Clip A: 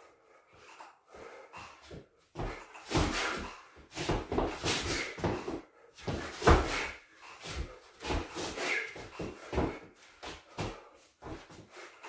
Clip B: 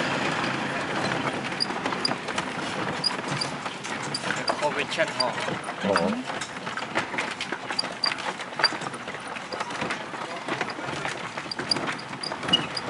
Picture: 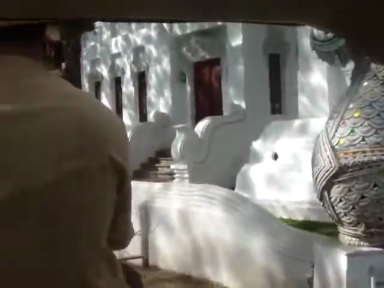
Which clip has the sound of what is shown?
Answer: B